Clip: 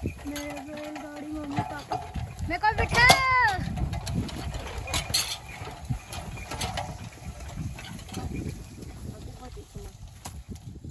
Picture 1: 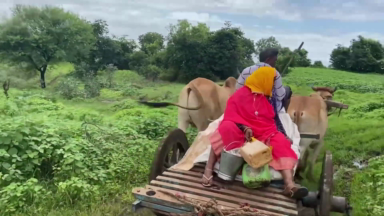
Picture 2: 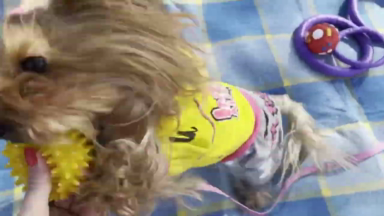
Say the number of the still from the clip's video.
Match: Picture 1